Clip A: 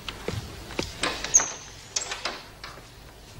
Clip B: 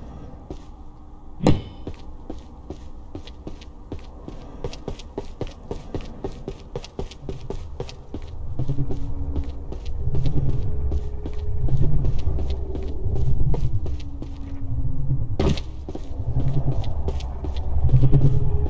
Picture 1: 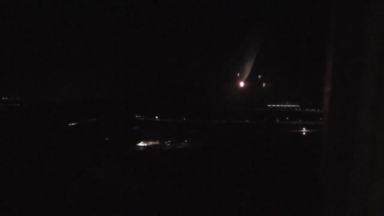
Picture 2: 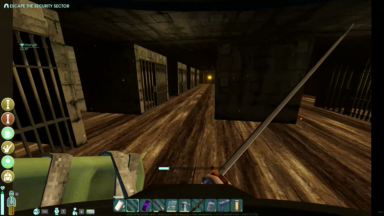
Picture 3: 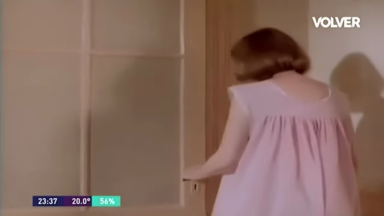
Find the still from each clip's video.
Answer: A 3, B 2